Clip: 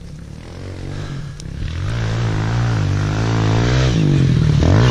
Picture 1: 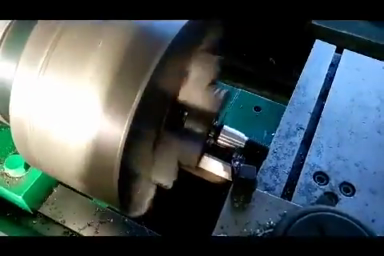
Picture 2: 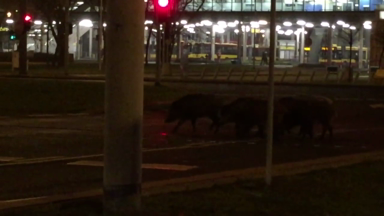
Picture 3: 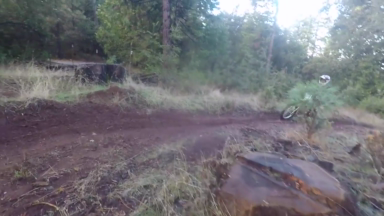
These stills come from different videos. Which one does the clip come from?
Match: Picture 3